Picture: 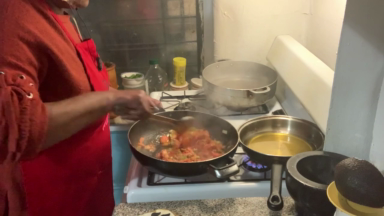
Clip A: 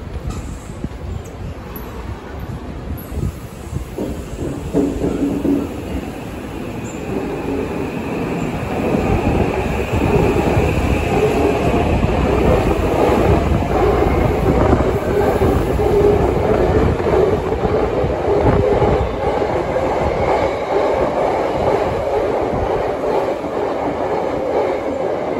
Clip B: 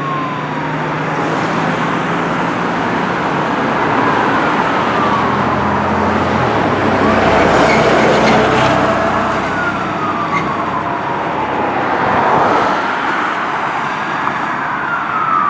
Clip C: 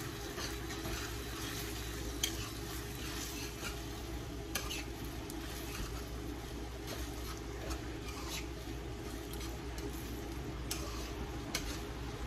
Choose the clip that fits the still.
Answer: C